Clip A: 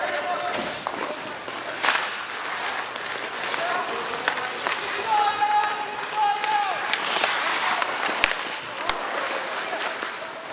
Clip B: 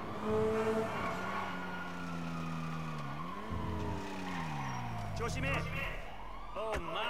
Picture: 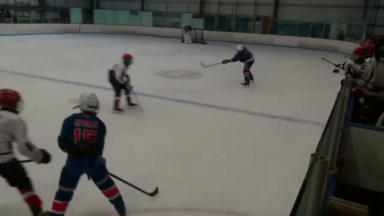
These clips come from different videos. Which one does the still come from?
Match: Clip A